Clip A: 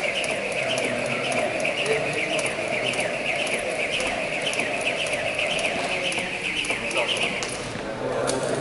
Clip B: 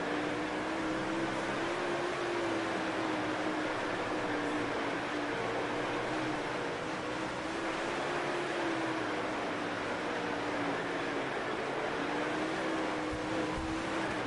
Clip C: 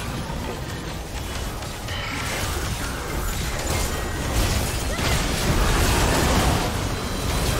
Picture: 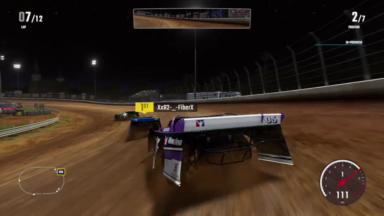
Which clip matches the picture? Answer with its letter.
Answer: B